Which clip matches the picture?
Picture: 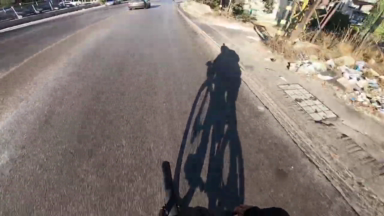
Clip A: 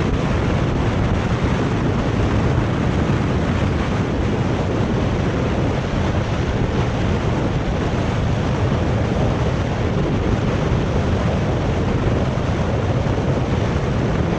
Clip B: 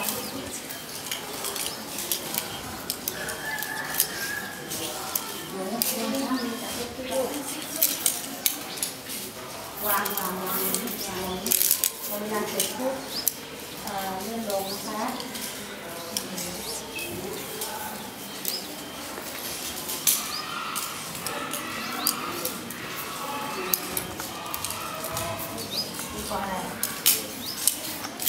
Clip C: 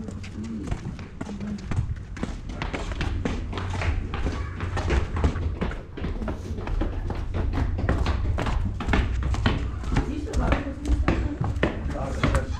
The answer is A